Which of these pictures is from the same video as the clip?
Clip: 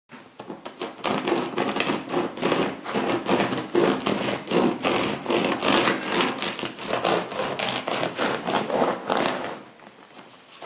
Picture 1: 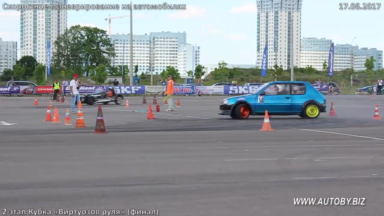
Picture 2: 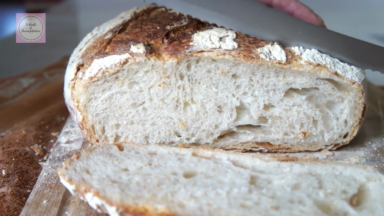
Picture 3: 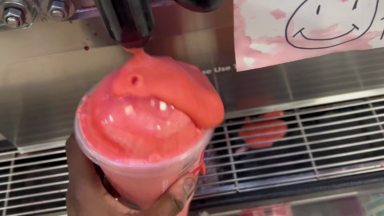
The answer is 2